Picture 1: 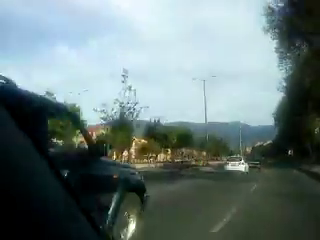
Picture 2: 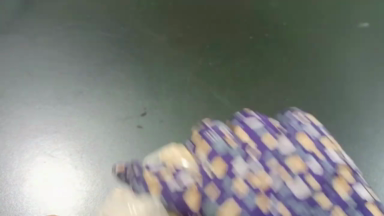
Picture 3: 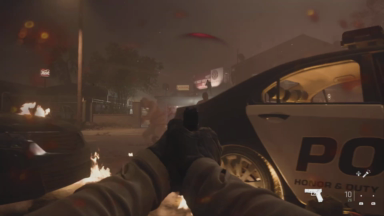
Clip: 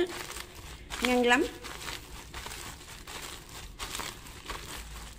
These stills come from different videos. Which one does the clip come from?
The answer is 2